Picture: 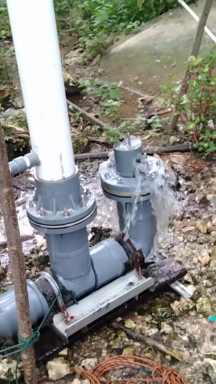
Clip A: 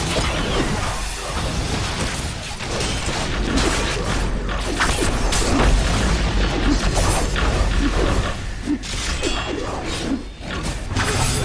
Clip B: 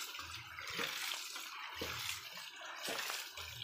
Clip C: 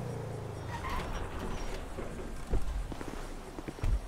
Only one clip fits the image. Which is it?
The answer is B